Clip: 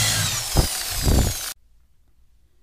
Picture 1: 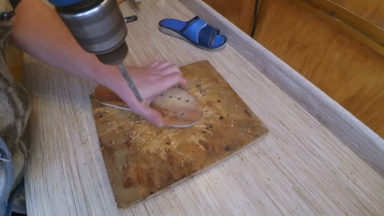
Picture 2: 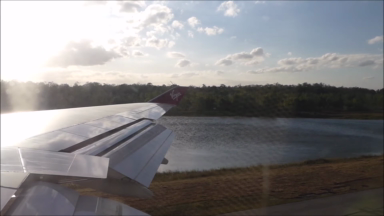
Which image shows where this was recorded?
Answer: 1